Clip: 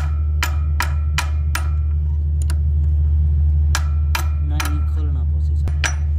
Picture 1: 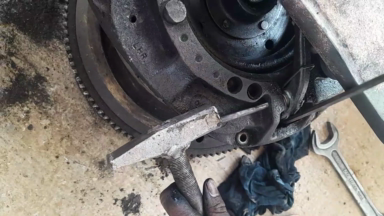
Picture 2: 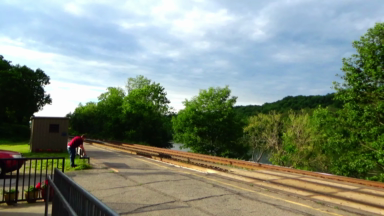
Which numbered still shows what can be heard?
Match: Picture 1